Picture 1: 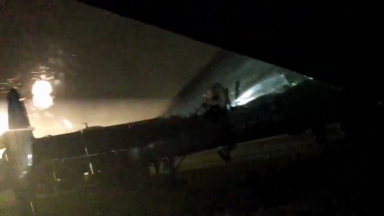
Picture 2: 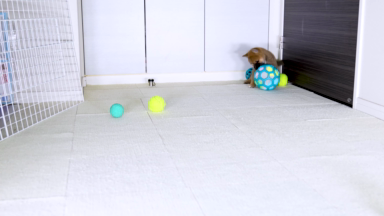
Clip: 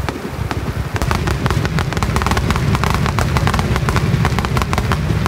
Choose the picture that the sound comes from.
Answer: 1